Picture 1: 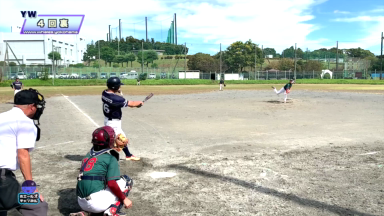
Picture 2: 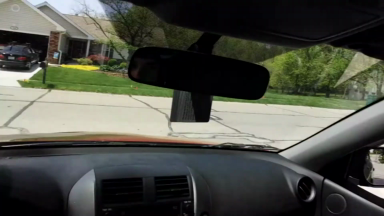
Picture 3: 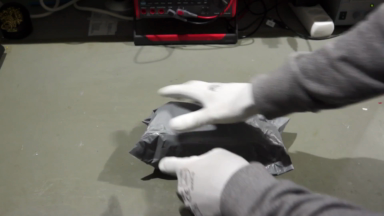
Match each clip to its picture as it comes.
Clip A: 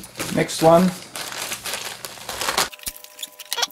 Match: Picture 3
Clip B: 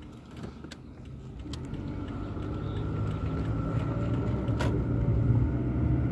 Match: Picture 2